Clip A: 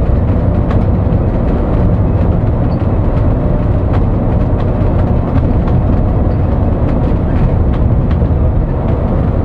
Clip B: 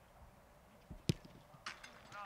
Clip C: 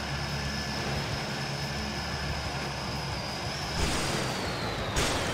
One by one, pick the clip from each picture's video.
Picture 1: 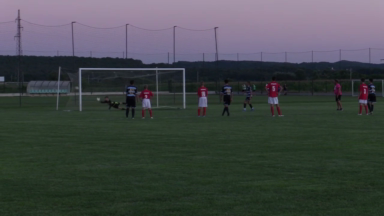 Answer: B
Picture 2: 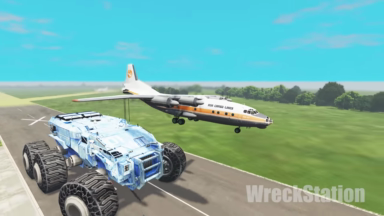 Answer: C